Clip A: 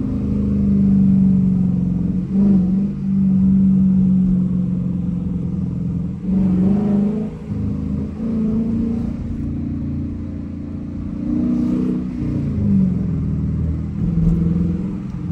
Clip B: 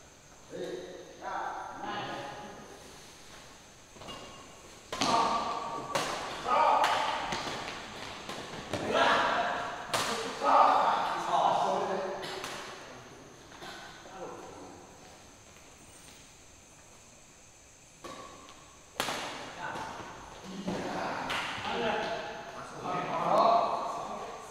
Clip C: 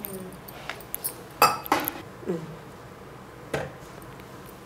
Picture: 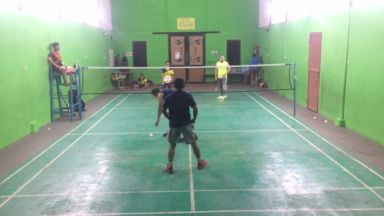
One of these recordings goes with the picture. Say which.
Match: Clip B